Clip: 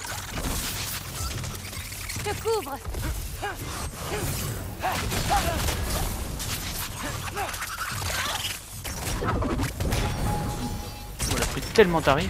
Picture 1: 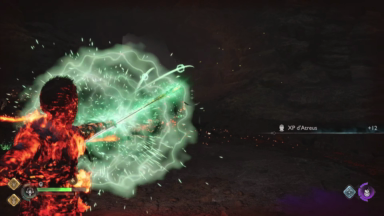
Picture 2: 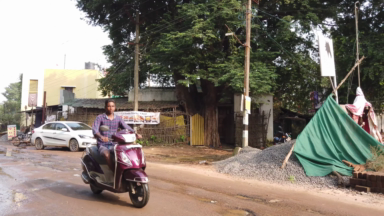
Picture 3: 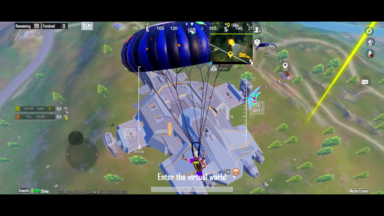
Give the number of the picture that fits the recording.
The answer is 1